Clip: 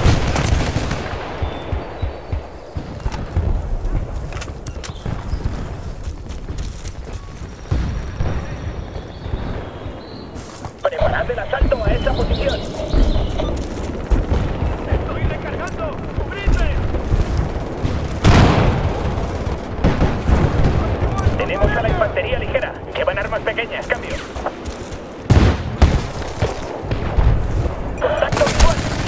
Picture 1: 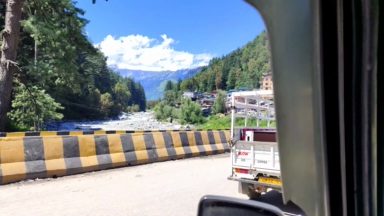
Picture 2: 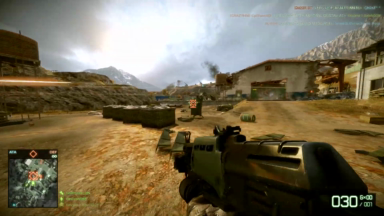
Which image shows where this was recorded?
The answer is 2